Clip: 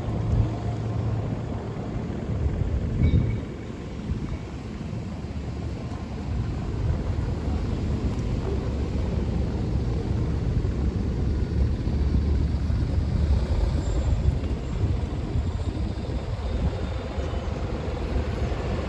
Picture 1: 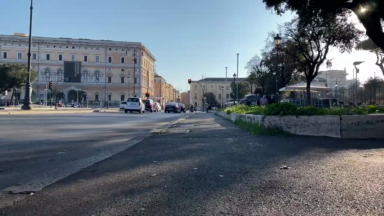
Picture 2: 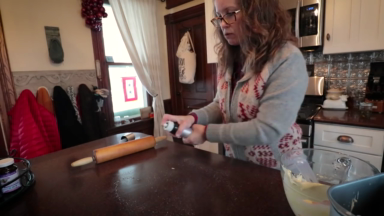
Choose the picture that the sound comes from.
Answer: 1